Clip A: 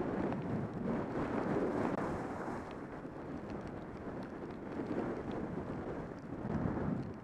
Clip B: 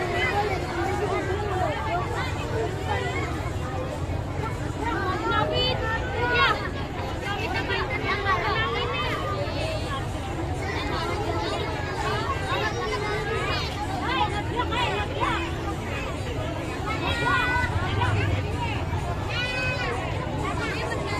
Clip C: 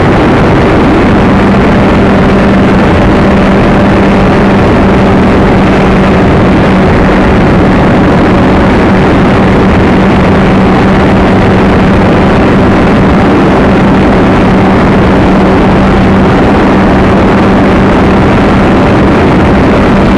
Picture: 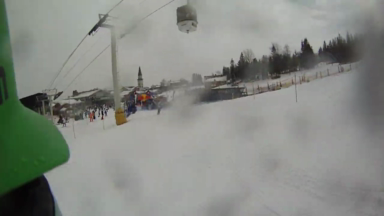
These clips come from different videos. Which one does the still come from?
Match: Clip A